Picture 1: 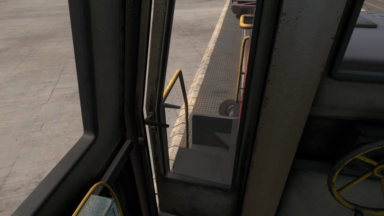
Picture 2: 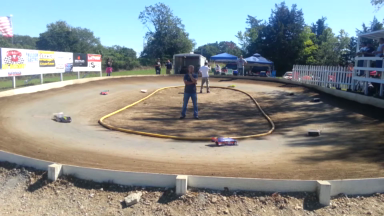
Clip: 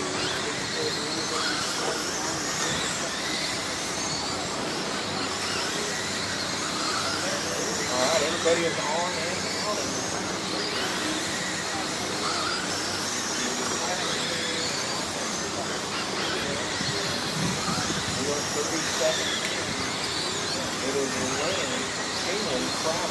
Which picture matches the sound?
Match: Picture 2